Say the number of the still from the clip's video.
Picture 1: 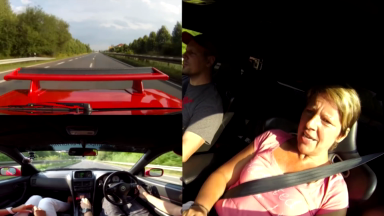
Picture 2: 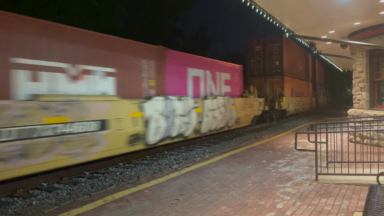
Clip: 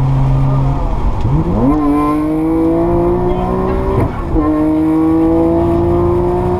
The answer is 1